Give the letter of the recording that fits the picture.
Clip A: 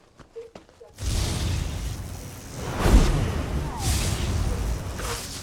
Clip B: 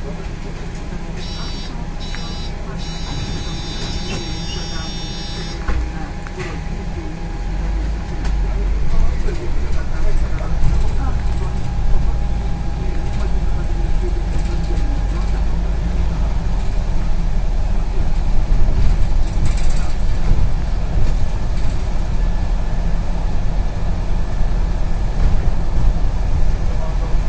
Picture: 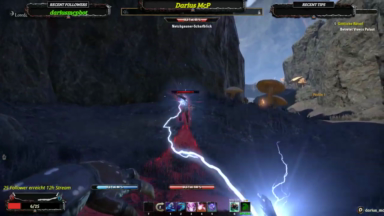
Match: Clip A